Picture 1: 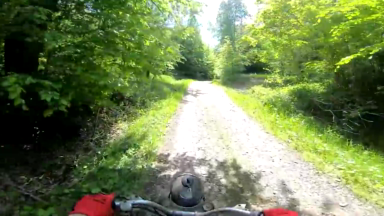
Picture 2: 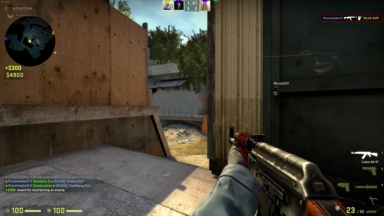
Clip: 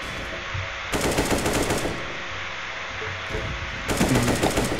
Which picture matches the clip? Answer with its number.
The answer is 2